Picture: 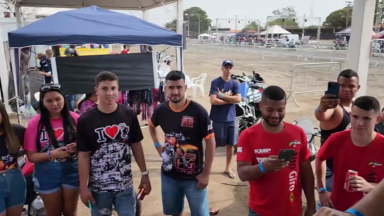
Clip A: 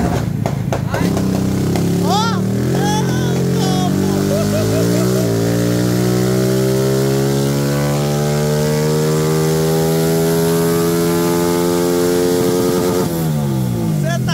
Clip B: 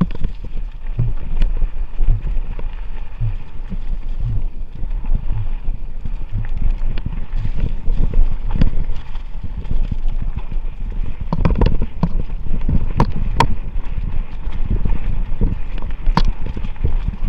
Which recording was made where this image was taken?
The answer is A